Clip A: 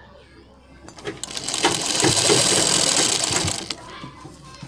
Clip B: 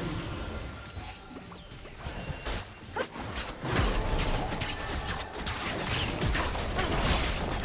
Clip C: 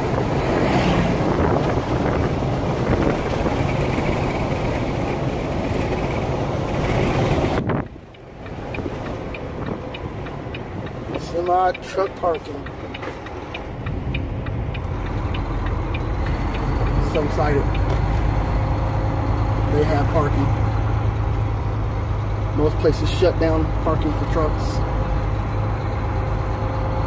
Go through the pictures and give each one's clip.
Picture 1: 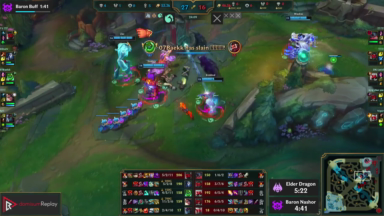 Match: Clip B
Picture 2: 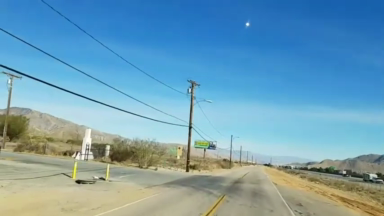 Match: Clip C